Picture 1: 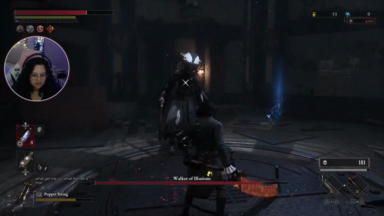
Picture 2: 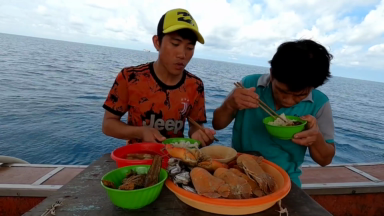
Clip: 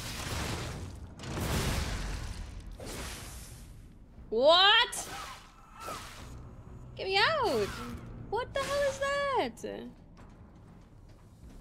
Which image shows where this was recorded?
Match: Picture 1